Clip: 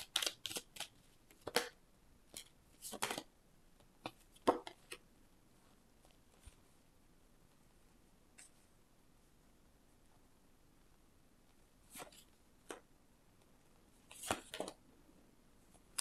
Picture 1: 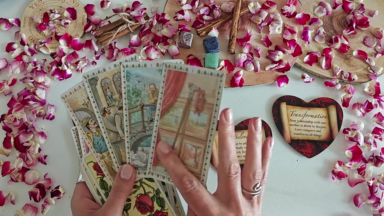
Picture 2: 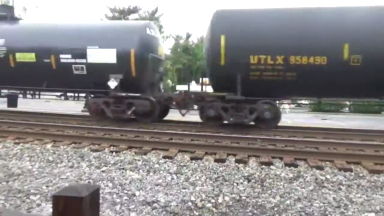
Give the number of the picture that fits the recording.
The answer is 1